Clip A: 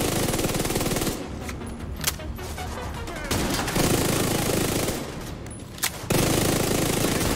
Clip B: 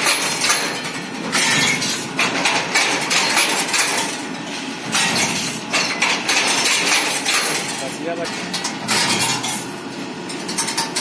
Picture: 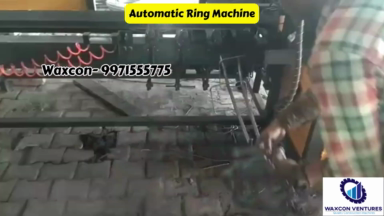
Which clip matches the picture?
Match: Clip B